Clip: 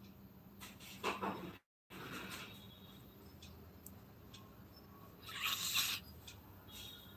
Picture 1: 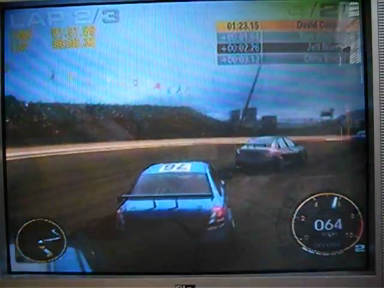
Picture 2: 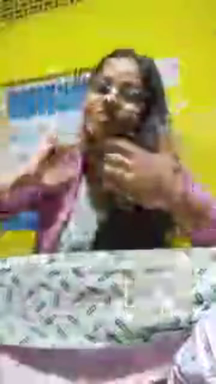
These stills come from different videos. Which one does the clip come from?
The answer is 2